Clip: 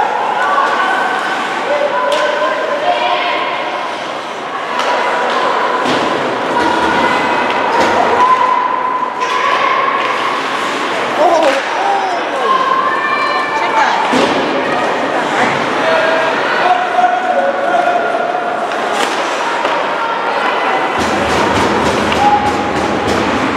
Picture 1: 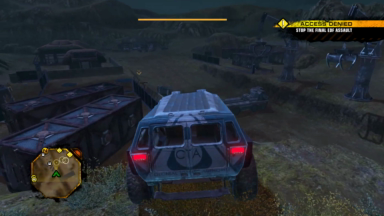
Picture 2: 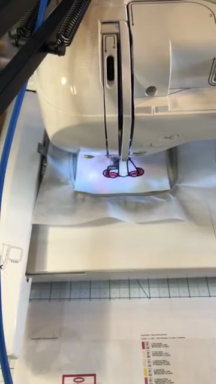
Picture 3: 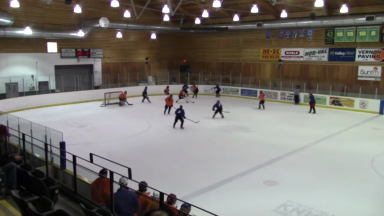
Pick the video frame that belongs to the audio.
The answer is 3